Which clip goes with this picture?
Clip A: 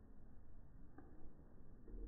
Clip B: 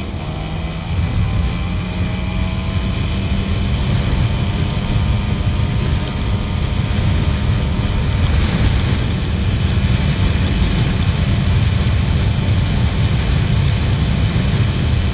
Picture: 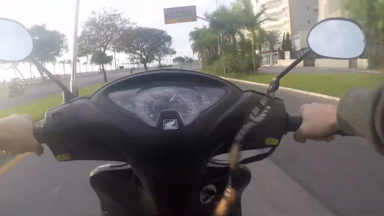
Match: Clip B